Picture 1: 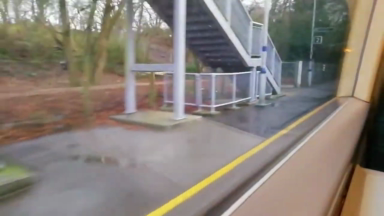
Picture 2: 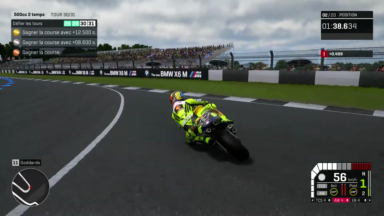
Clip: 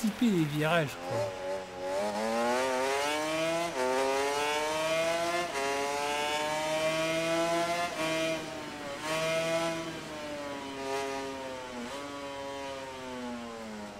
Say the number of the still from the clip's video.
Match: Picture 2